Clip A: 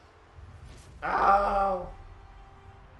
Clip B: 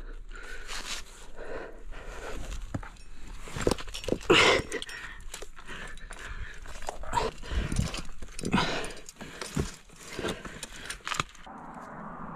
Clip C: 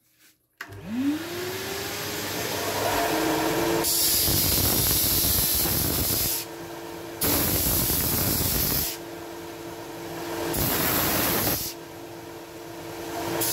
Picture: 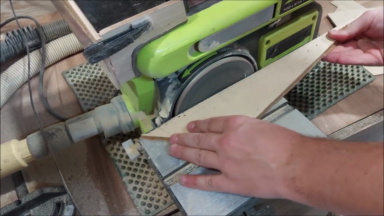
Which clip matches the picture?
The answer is C